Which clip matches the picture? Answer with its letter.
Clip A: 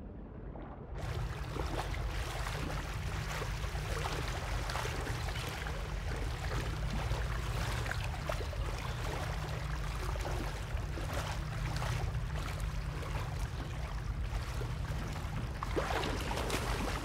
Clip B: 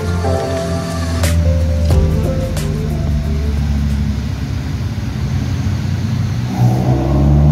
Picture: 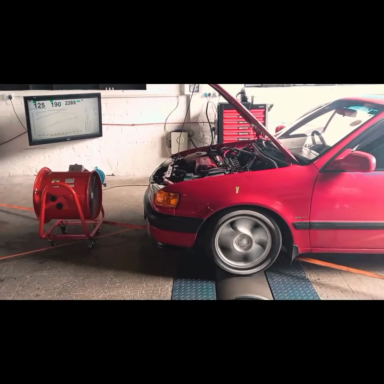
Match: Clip B